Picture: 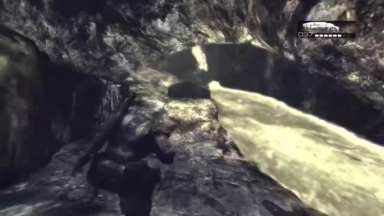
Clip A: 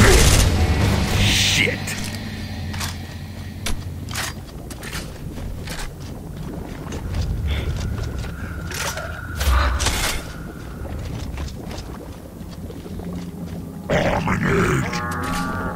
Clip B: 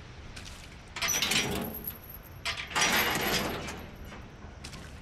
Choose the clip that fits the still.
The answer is A